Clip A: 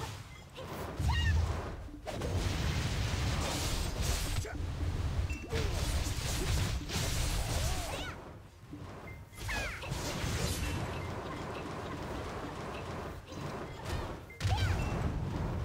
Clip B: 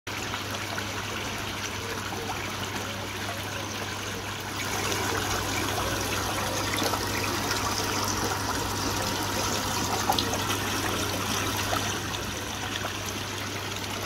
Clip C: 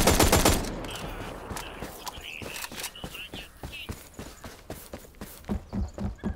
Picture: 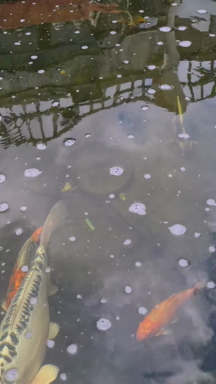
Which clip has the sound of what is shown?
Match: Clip B